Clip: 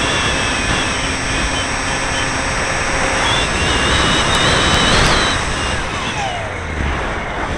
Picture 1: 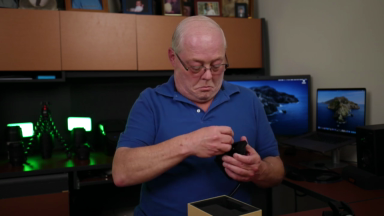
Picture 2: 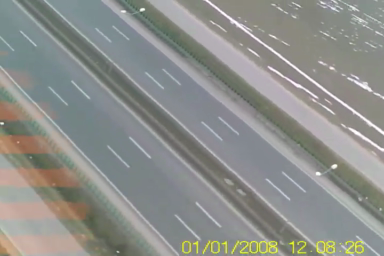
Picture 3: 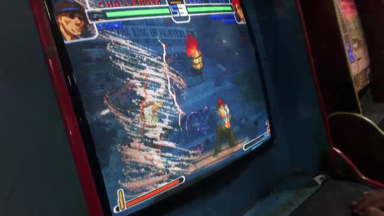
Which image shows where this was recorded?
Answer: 2